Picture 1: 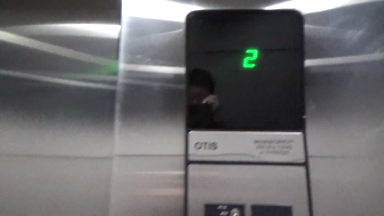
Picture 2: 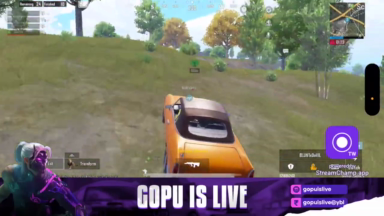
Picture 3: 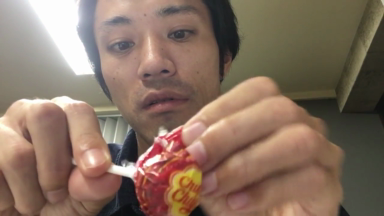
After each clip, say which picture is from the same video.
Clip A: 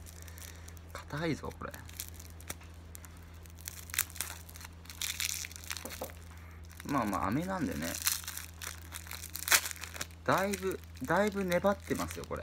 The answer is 3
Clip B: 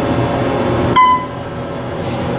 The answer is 1